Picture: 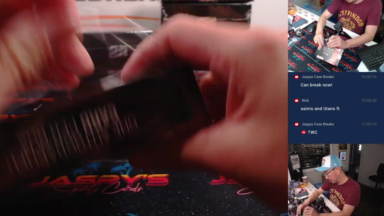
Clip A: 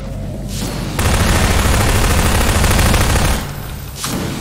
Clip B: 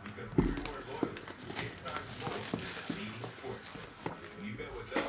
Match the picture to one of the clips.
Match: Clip B